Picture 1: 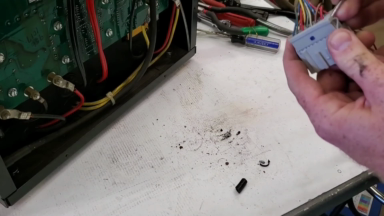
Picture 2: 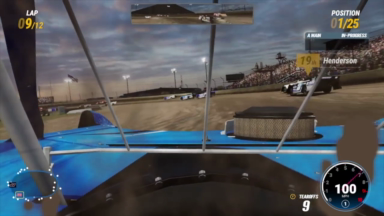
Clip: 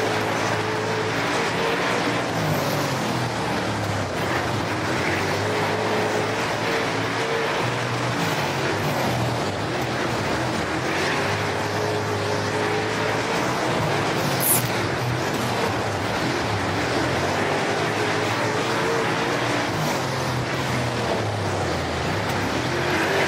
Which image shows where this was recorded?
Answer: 2